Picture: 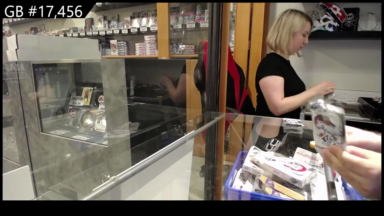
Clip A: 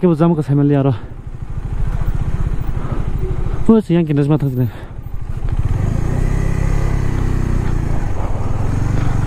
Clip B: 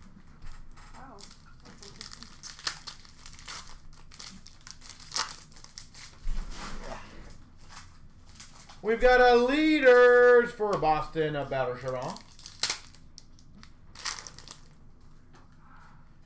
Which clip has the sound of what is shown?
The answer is B